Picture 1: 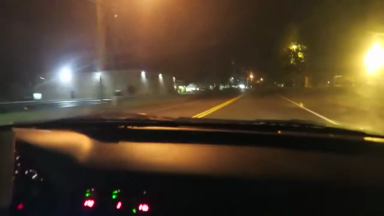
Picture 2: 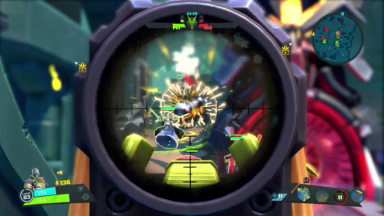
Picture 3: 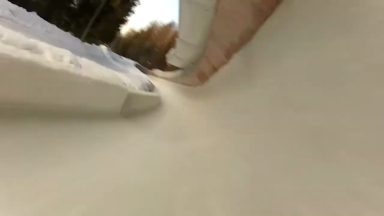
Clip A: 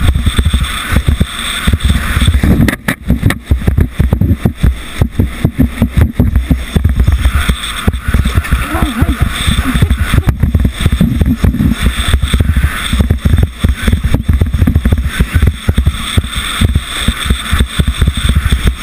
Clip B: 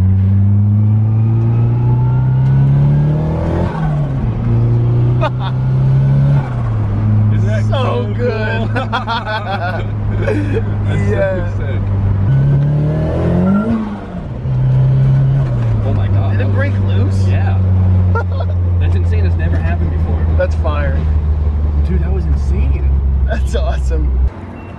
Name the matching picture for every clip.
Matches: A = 3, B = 1